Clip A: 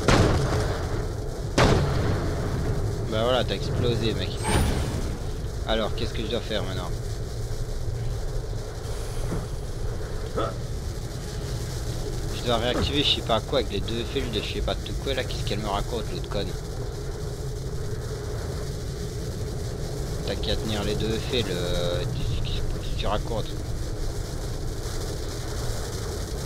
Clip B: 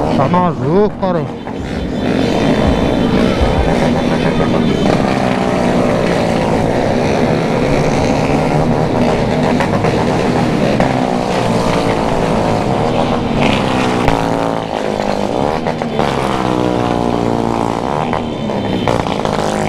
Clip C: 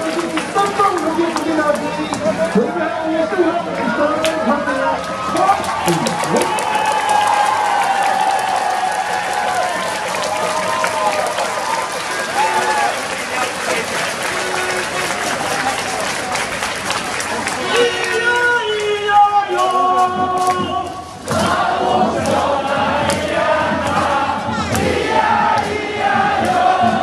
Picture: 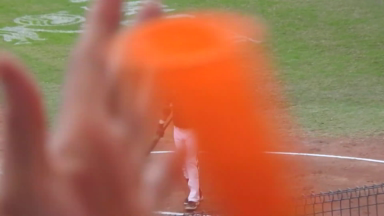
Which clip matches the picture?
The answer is C